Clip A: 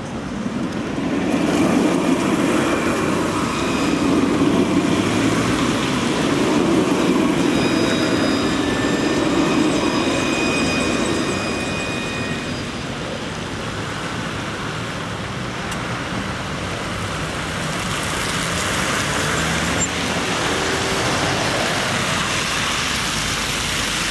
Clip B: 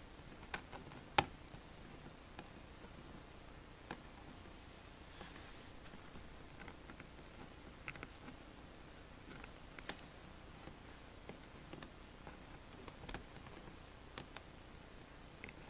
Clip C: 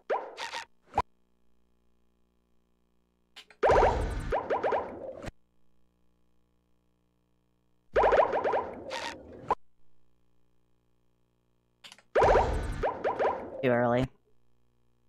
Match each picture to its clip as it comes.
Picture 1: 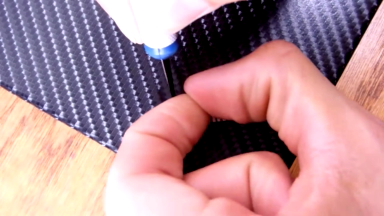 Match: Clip B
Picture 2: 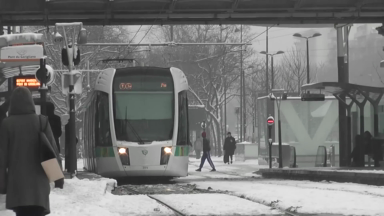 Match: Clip A